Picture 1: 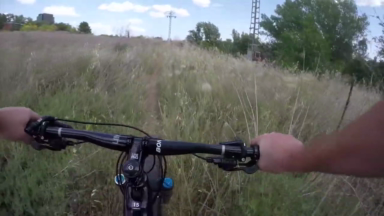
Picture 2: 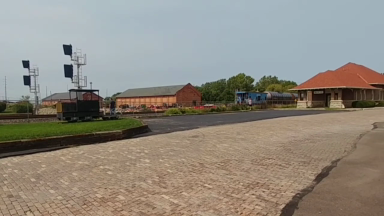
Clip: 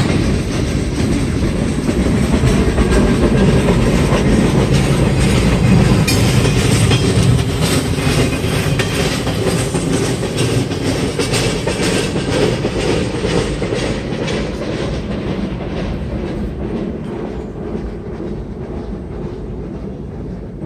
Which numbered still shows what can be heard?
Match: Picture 2